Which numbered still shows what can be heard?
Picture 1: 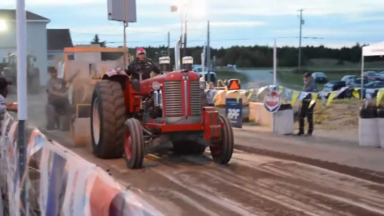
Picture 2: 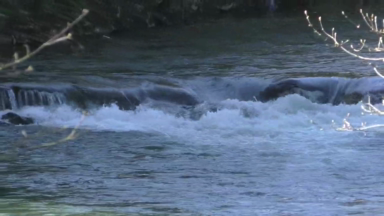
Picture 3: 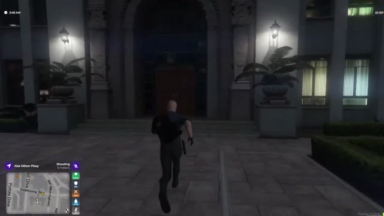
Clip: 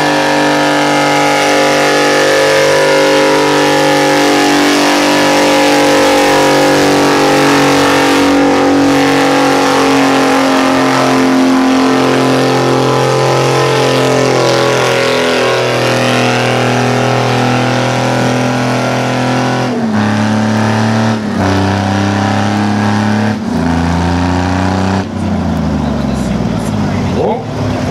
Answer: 1